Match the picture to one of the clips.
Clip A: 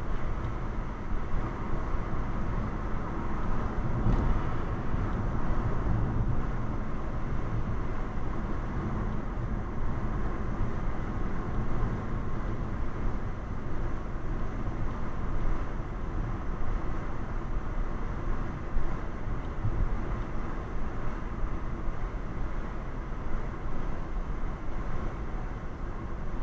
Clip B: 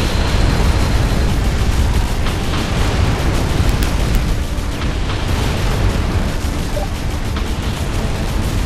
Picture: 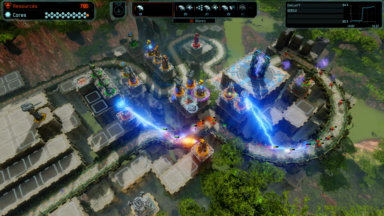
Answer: B